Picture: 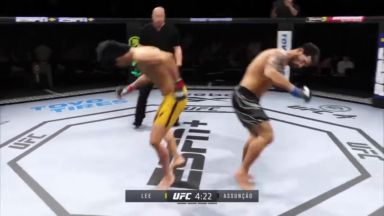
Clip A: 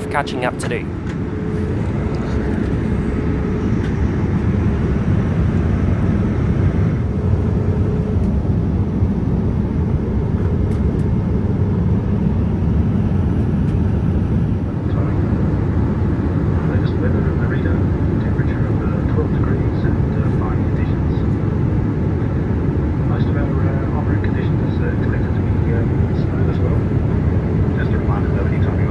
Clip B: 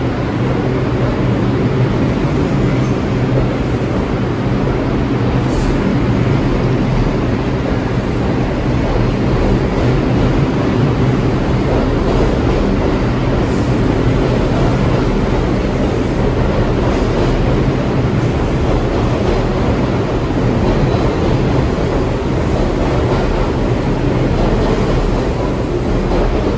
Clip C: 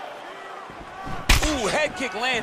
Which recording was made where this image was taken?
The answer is C